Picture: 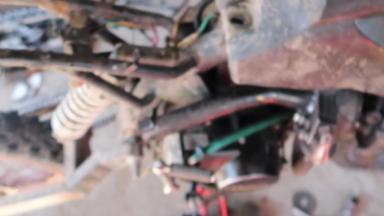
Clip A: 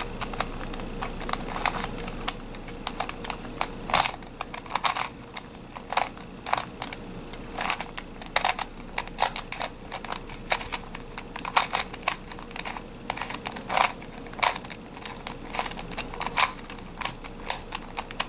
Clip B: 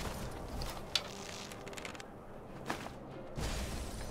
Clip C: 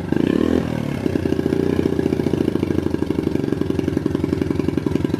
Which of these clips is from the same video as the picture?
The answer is C